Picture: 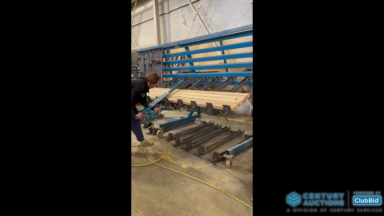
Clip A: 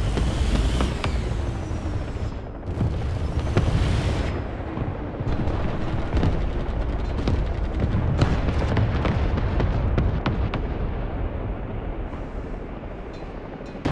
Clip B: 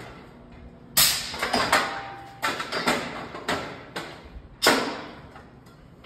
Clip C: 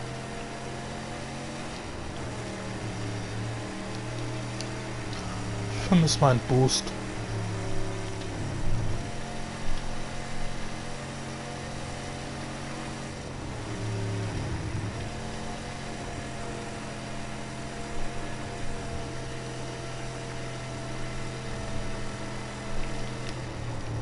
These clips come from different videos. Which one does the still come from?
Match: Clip B